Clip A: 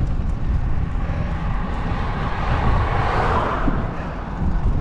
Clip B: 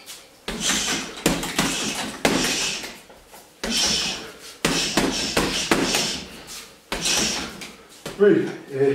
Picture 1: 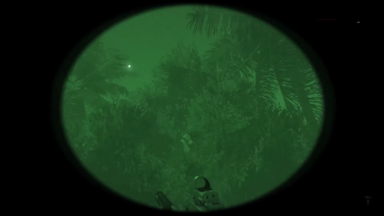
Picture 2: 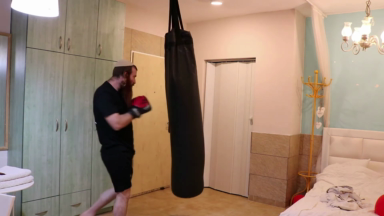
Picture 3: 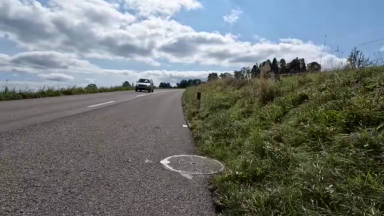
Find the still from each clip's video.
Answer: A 3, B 2